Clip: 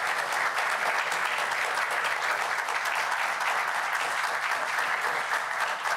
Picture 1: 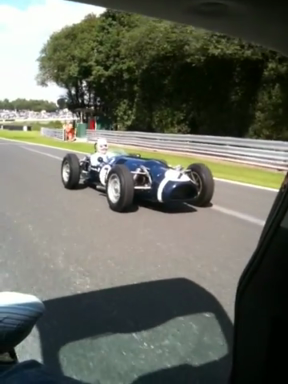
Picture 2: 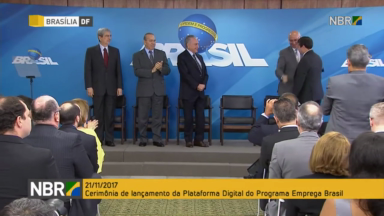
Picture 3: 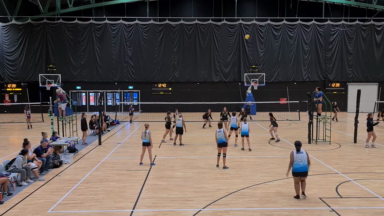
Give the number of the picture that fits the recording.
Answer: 2